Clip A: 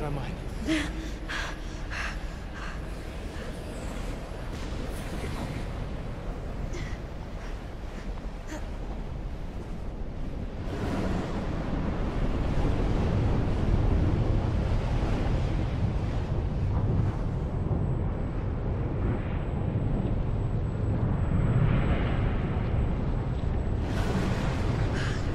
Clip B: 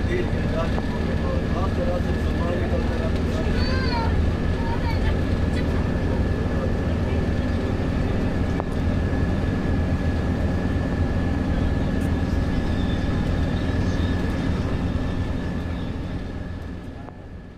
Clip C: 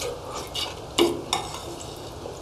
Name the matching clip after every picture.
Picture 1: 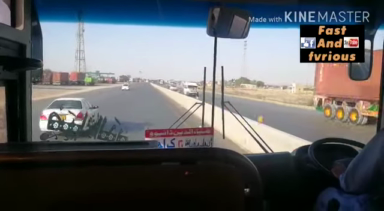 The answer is B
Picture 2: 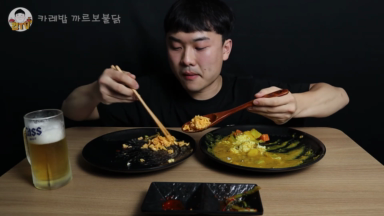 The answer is C